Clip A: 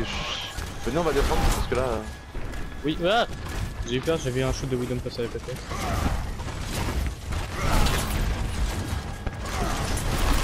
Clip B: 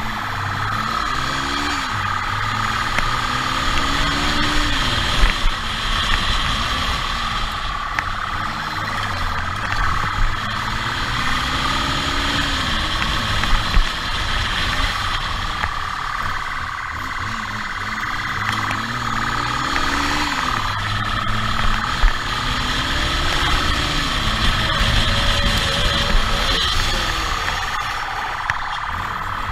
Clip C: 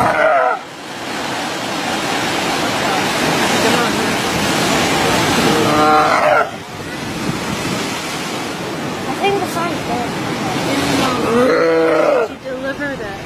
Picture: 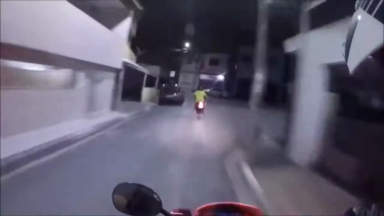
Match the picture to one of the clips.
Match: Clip B